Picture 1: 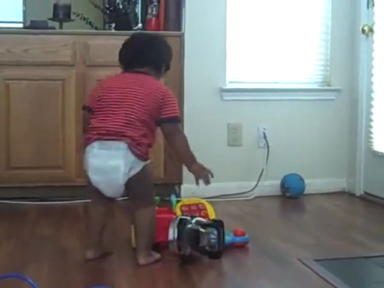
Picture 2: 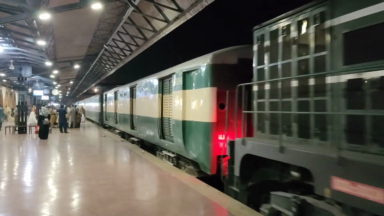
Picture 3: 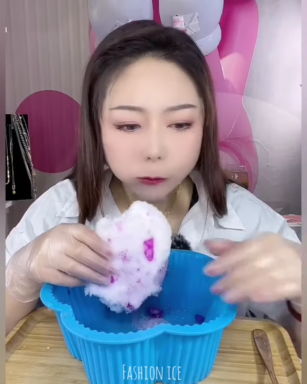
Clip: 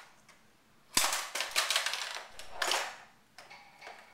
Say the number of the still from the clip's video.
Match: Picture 1